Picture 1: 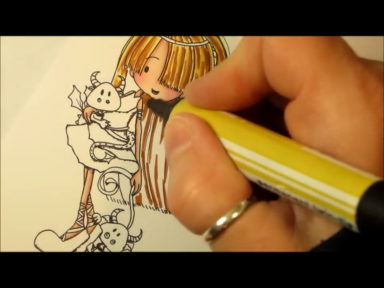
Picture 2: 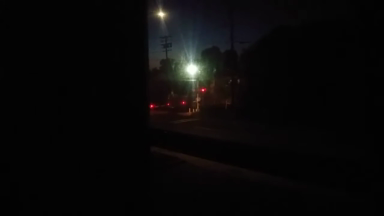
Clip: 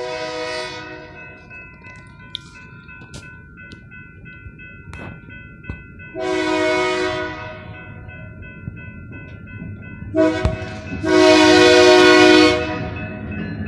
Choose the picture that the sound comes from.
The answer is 2